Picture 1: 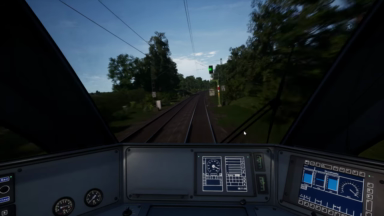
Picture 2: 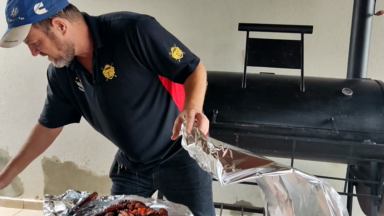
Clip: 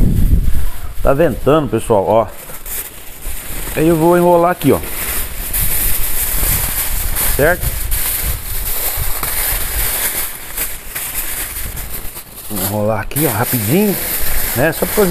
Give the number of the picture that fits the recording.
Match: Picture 2